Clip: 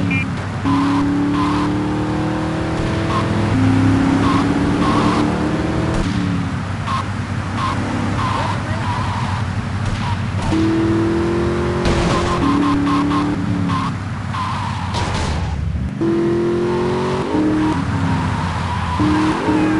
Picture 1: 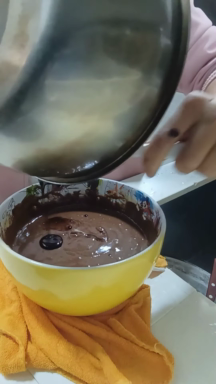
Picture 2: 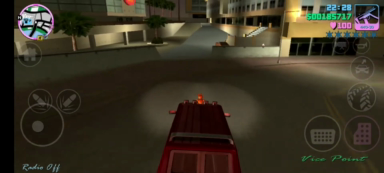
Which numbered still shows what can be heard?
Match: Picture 2